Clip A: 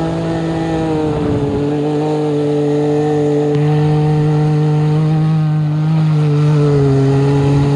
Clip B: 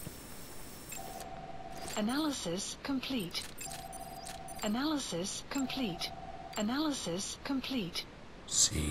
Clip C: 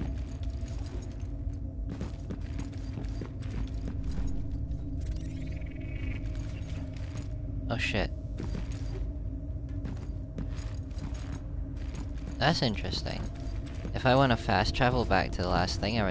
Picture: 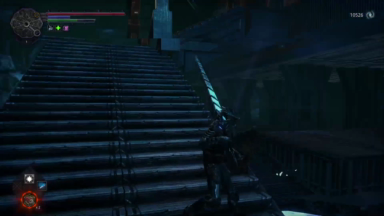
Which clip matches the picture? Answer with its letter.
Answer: C